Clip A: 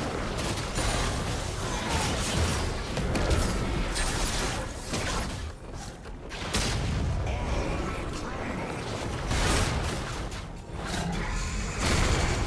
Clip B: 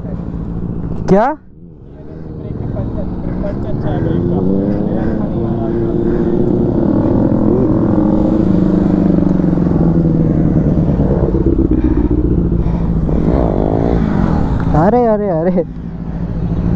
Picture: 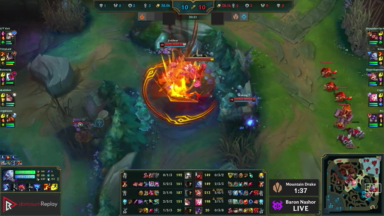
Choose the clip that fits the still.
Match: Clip A